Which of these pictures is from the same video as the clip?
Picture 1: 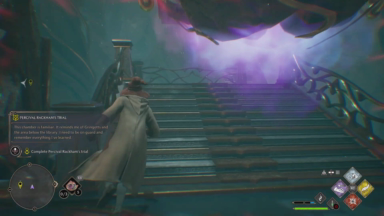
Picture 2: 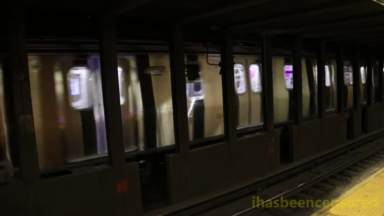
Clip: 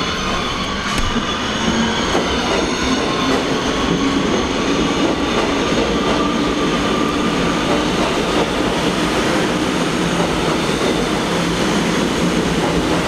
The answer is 2